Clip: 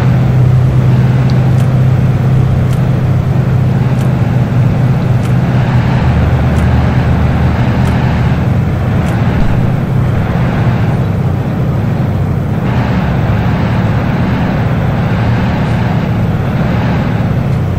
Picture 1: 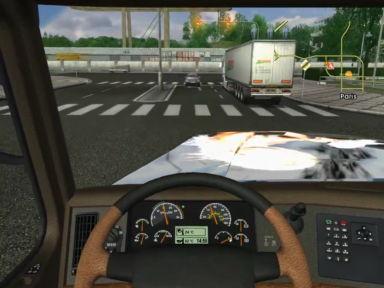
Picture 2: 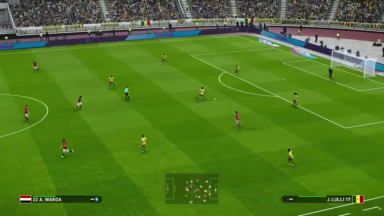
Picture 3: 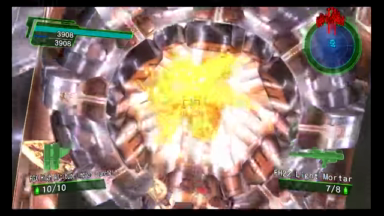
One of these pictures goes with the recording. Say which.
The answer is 1